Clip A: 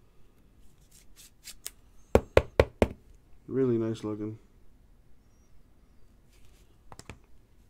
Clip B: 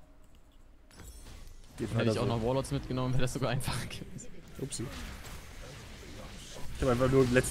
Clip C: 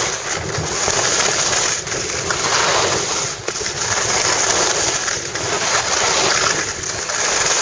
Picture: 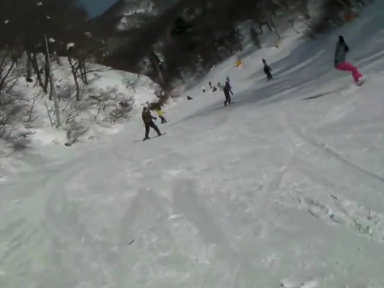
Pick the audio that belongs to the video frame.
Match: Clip C